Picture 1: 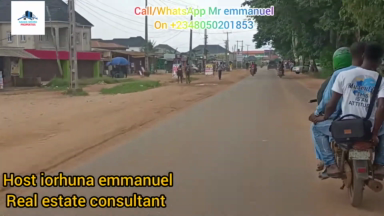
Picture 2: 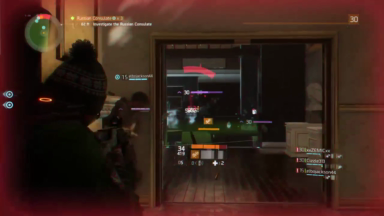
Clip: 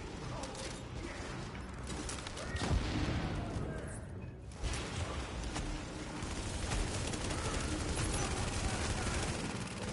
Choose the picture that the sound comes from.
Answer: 2